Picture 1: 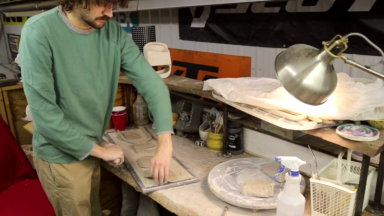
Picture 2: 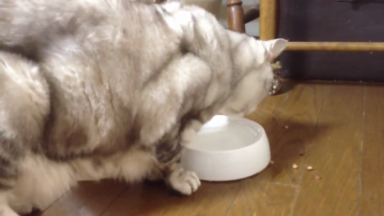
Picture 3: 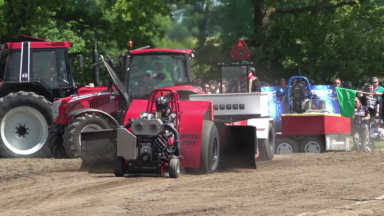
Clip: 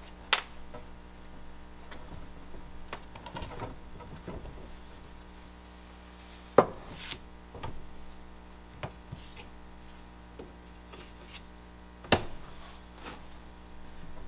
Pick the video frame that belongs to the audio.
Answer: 1